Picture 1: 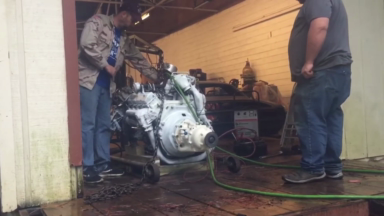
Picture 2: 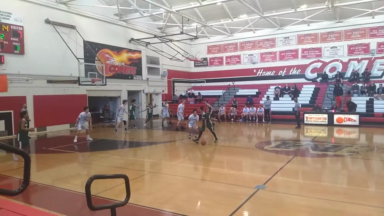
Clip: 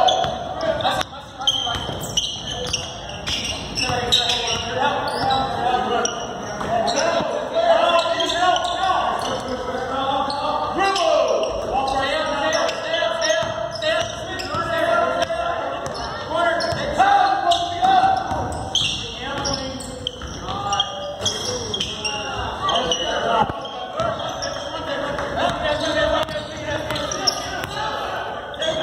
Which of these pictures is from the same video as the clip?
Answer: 2